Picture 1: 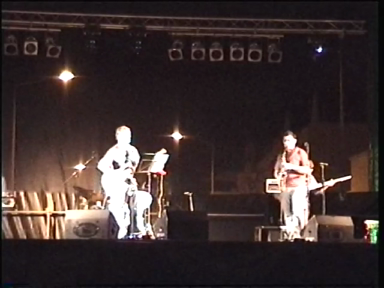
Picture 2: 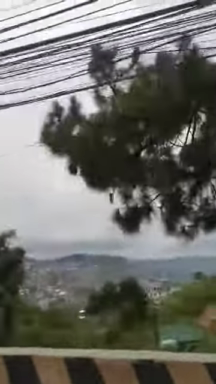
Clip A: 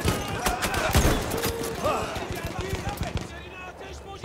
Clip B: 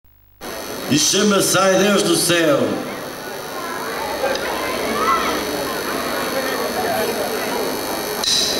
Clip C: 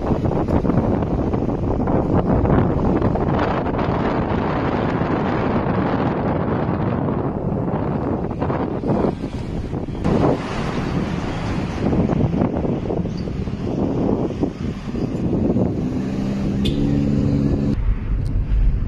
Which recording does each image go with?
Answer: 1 B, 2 C